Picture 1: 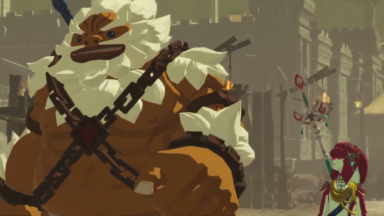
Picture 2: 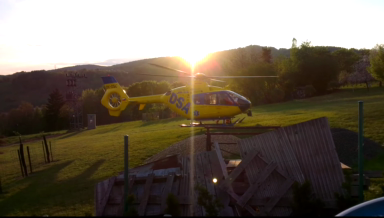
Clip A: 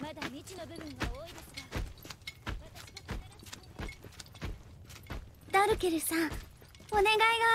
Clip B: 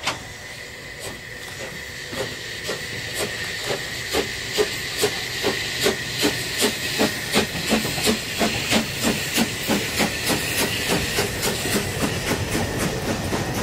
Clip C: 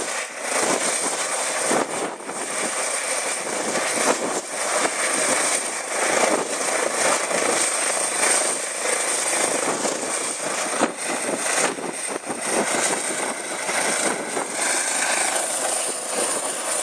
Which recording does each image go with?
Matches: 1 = A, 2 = C